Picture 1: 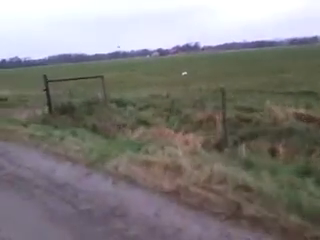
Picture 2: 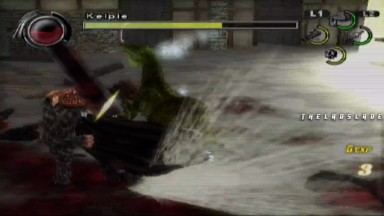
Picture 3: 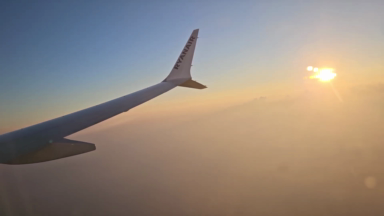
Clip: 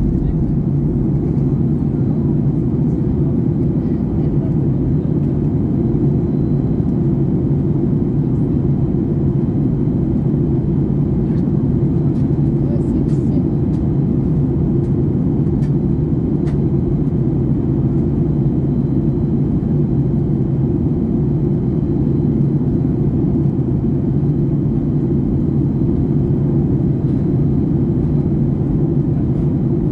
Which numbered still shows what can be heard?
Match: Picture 3